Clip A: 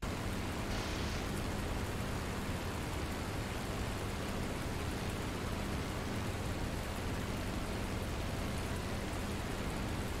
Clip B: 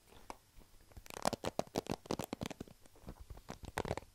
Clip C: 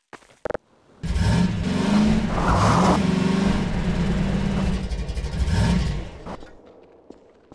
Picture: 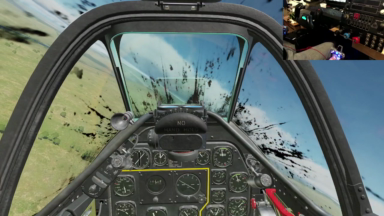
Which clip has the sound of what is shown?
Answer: A